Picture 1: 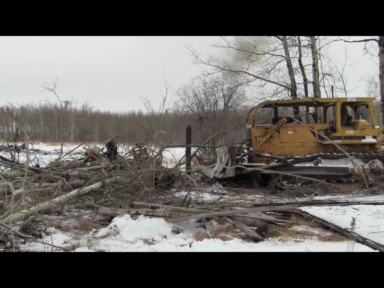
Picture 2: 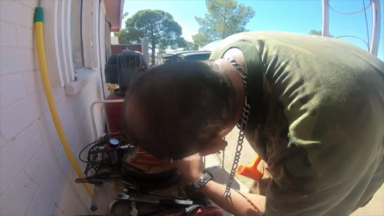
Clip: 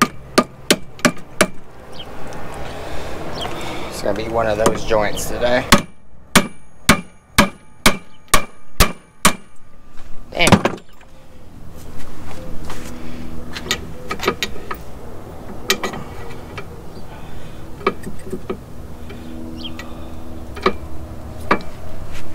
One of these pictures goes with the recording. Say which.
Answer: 2